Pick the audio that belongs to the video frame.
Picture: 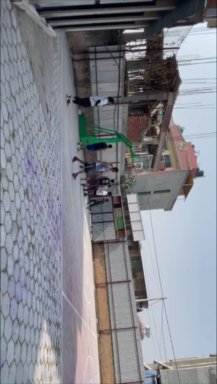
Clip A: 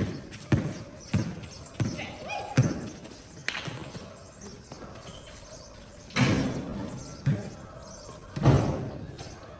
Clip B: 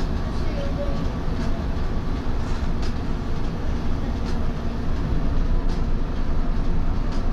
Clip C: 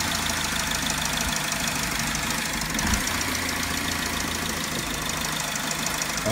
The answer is A